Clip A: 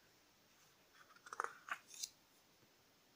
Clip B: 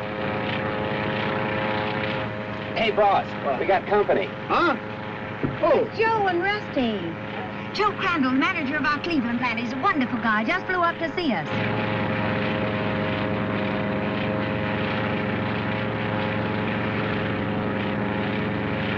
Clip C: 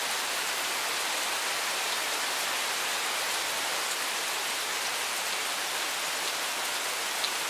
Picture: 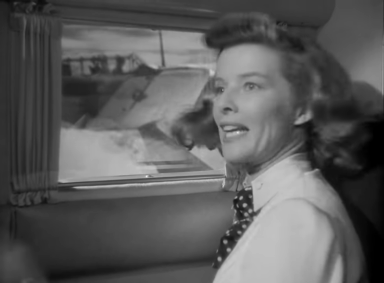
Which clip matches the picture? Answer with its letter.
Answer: B